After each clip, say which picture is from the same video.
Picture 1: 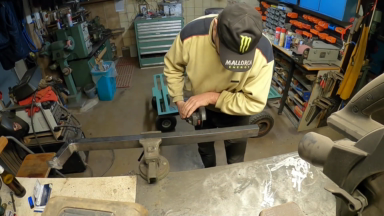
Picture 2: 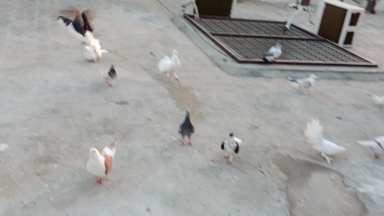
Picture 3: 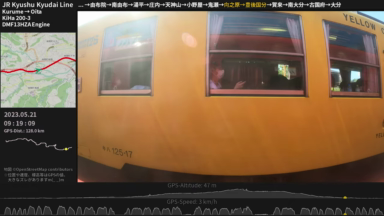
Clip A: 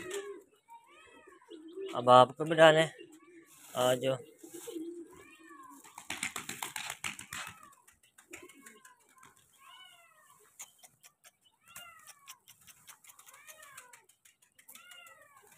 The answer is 2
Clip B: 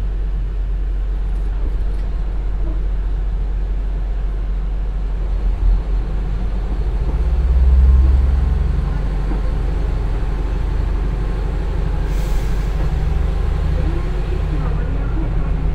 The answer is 3